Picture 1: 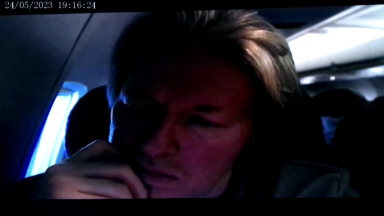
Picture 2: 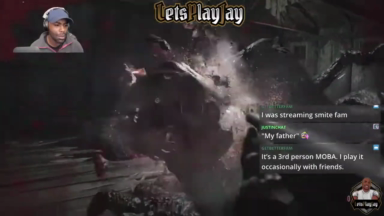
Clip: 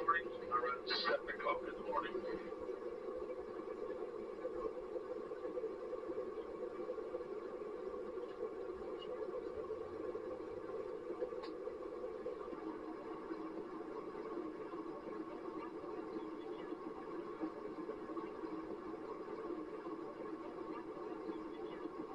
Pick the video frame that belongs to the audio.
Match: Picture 1